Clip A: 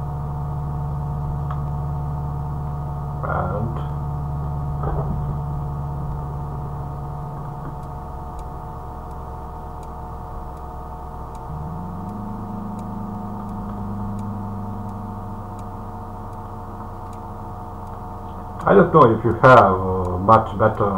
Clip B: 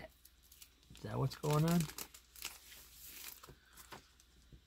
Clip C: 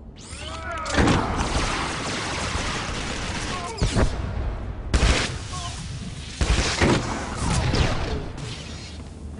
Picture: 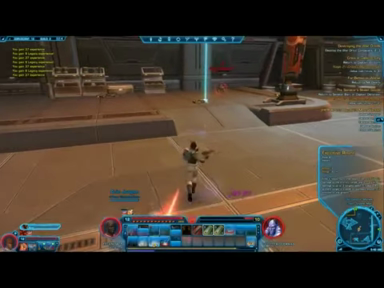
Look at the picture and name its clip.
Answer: C